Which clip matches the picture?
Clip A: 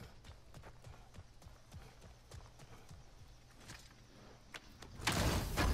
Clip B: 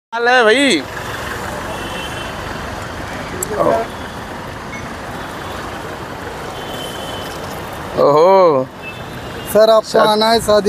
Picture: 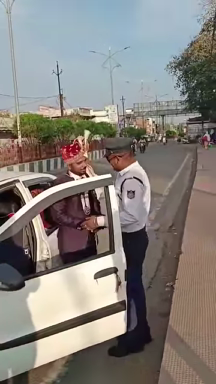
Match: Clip B